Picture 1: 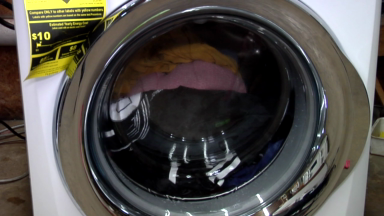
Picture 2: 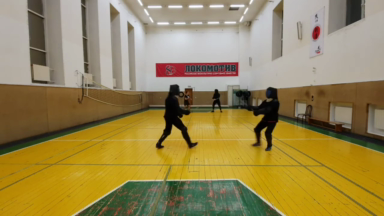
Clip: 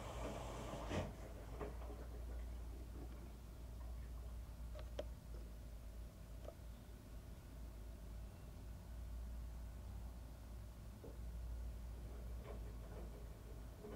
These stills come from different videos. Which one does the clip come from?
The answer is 1